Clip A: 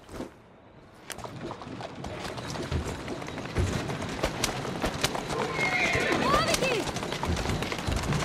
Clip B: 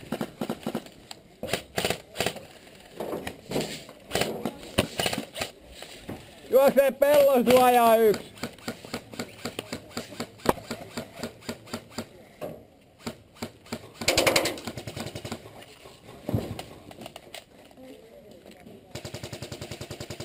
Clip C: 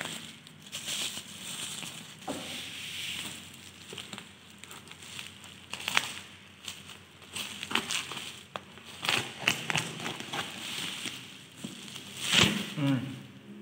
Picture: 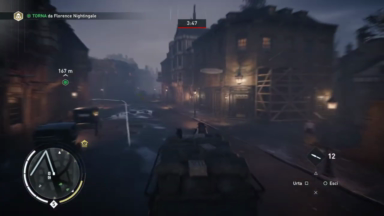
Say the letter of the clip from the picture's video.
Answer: A